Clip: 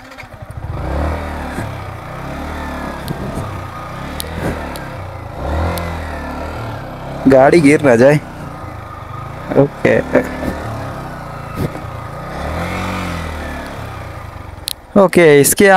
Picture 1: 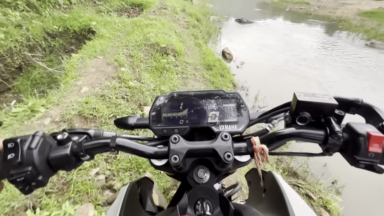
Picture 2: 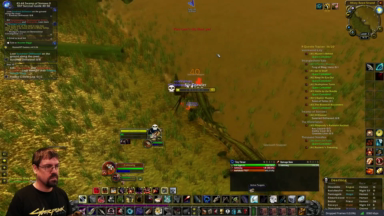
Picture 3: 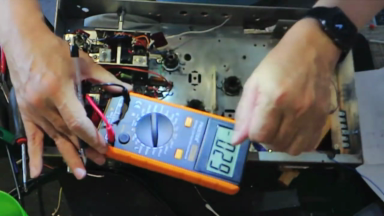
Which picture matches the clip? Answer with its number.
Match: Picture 1